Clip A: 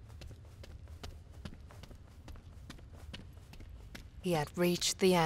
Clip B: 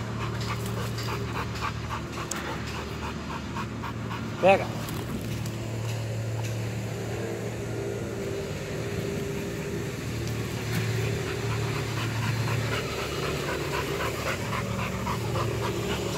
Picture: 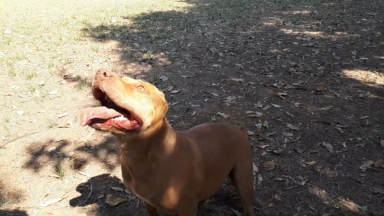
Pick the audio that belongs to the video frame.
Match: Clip B